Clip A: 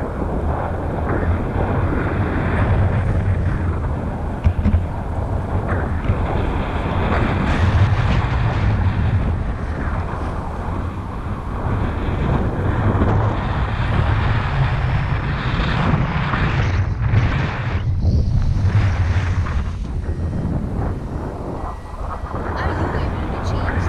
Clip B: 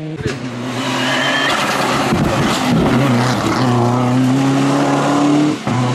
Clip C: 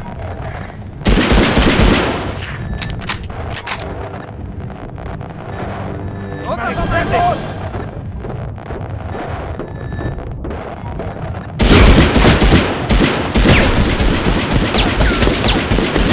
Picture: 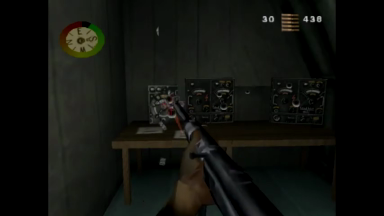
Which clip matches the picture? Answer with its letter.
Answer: C